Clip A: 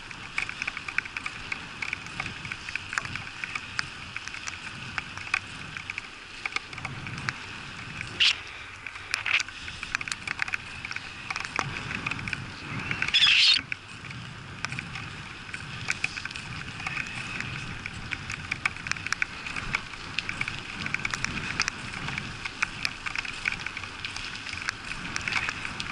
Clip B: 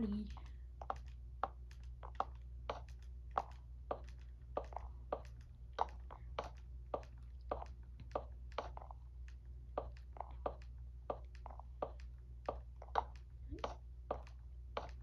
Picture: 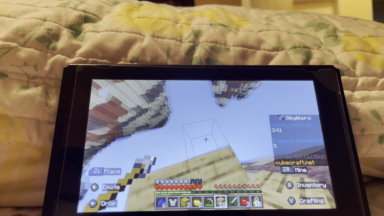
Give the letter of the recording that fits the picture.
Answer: B